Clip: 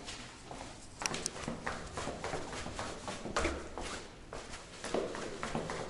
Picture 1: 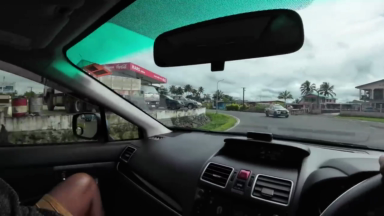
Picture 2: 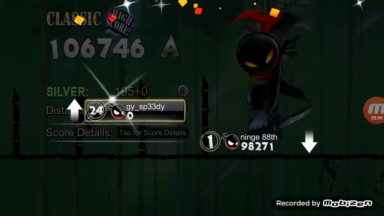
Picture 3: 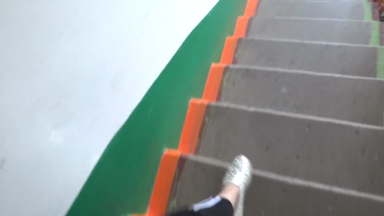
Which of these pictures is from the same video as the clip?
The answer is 3